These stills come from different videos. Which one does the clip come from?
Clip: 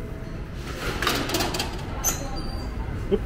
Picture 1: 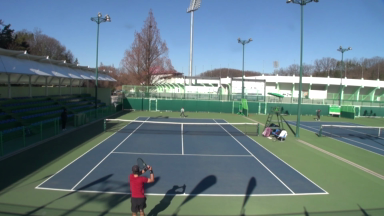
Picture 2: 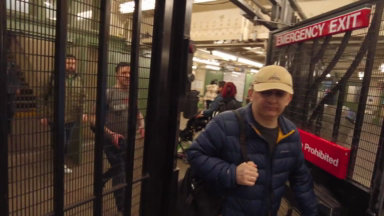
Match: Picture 2